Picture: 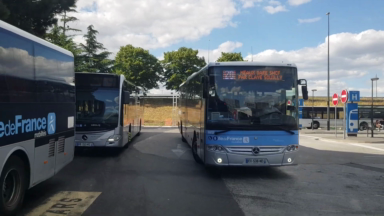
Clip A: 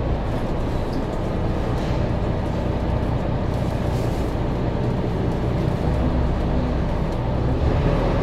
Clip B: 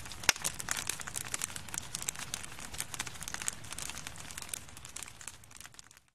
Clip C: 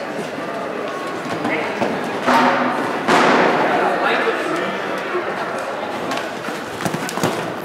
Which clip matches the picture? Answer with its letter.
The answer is A